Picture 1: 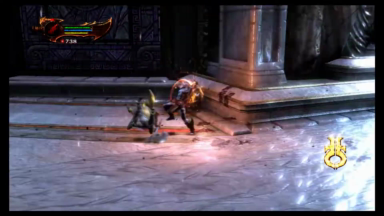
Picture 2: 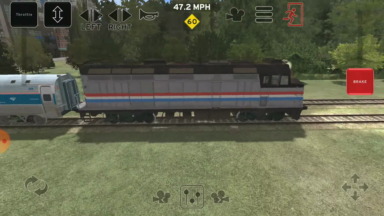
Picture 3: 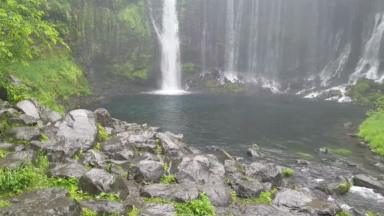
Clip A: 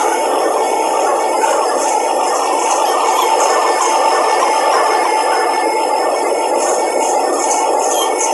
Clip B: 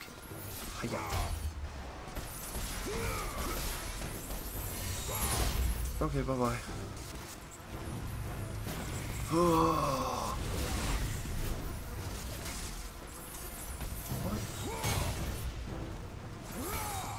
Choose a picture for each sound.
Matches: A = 2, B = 1